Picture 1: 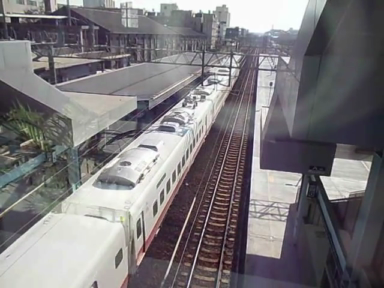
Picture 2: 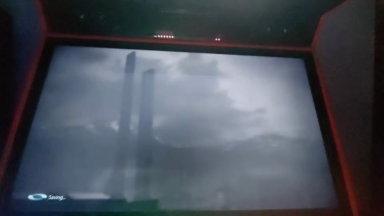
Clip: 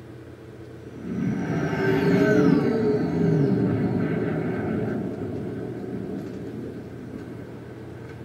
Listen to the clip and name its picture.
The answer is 2